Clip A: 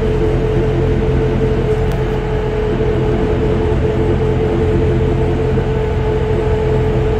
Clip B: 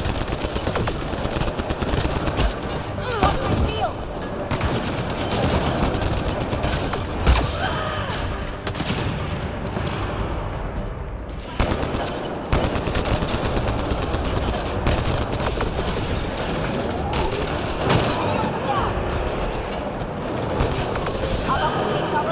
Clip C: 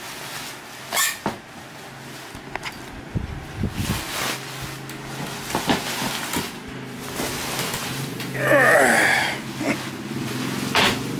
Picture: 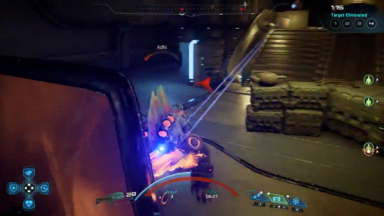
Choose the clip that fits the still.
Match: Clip B